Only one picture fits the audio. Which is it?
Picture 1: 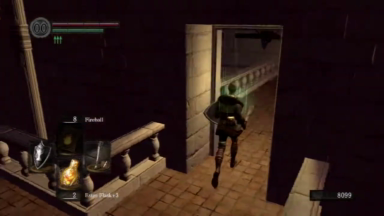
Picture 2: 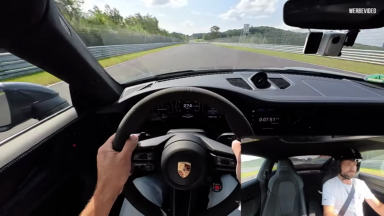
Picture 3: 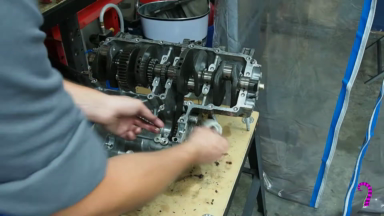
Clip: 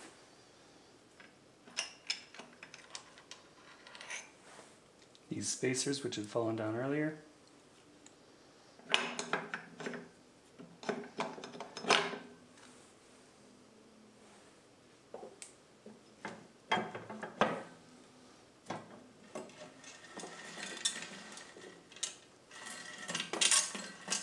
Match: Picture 3